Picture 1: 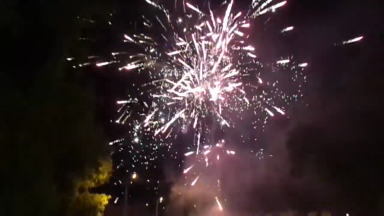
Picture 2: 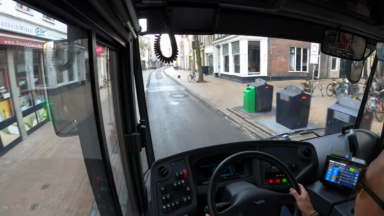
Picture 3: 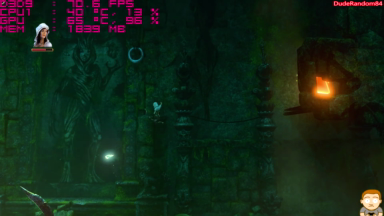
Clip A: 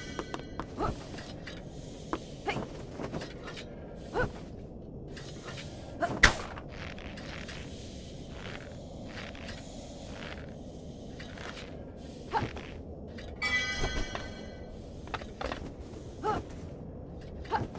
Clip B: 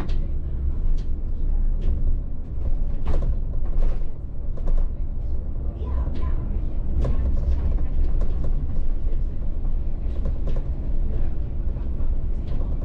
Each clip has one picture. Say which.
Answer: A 3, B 2